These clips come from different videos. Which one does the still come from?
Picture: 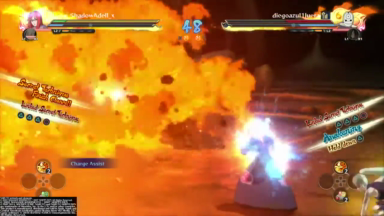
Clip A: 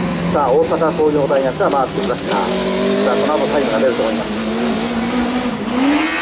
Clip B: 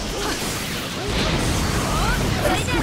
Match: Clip B